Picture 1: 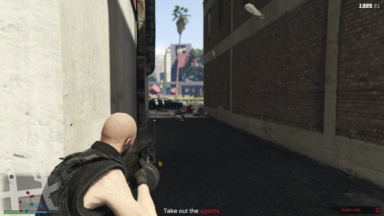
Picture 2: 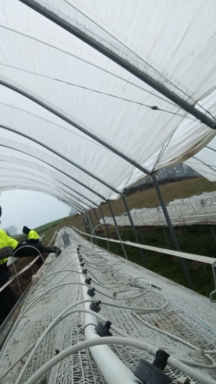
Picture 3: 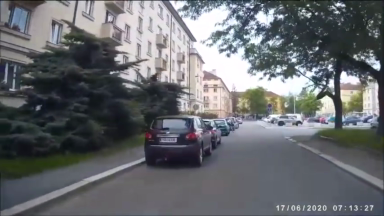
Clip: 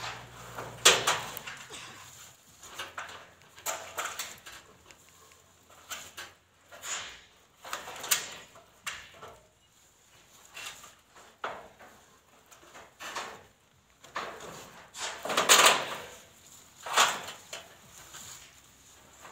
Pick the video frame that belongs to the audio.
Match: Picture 2